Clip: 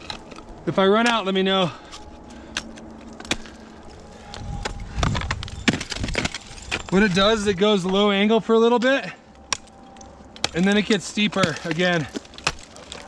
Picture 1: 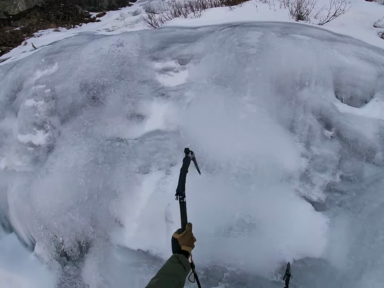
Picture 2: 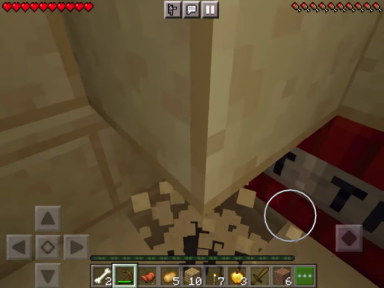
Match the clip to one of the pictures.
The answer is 1